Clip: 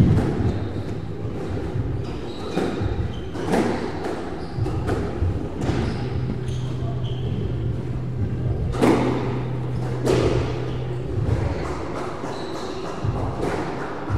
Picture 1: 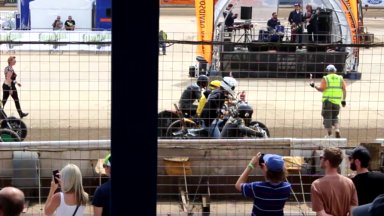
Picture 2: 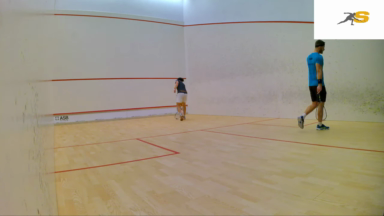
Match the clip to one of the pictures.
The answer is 2